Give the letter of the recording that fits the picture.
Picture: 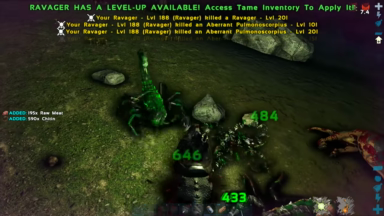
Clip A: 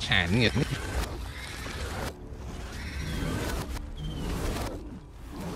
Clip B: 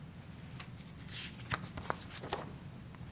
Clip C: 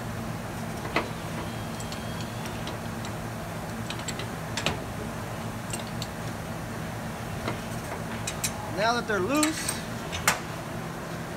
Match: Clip A